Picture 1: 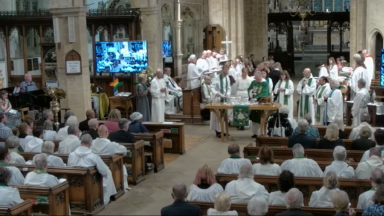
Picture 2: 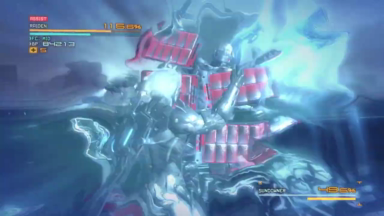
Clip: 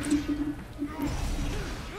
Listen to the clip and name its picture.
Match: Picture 2